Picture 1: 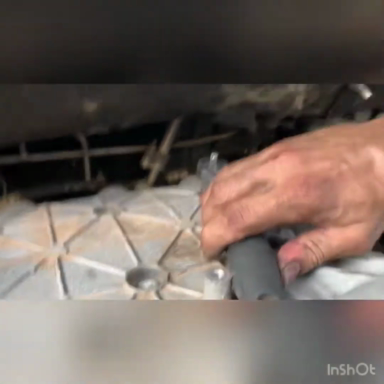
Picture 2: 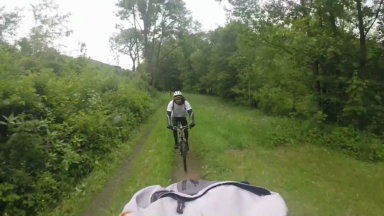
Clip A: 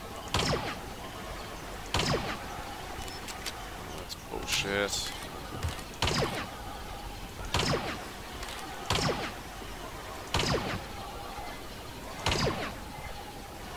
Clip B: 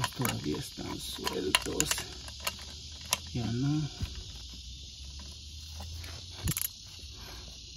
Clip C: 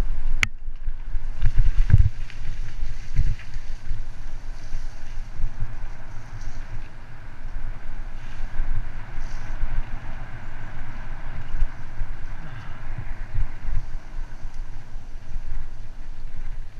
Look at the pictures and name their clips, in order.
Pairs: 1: B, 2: C